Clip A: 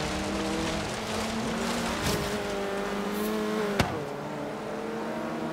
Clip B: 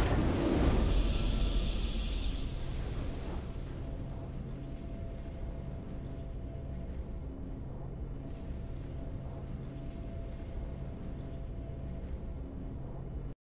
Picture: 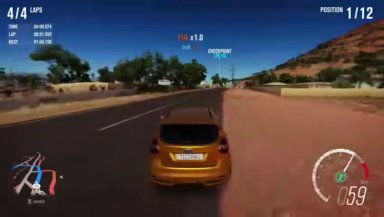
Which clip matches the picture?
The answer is A